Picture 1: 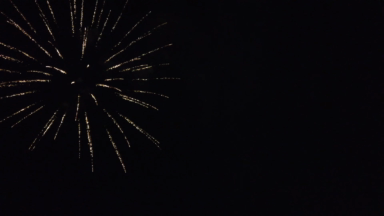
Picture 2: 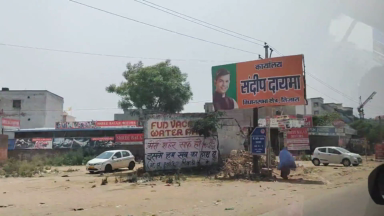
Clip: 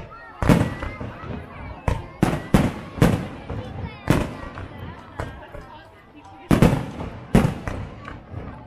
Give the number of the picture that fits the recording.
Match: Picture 1